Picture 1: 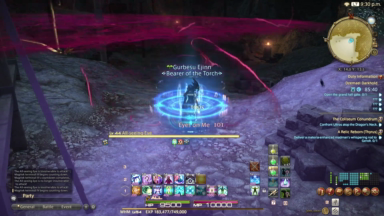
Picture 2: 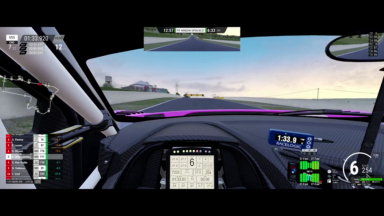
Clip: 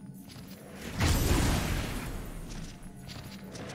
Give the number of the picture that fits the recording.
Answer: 1